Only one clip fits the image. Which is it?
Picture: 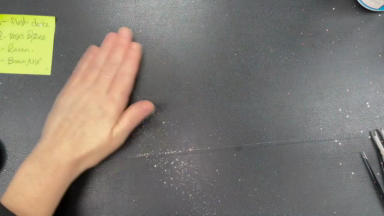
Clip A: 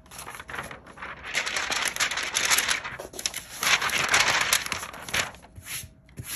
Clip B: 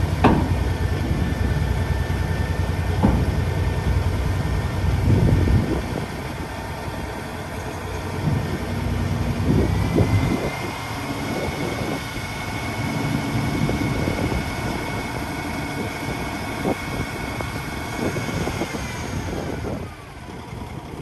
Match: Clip A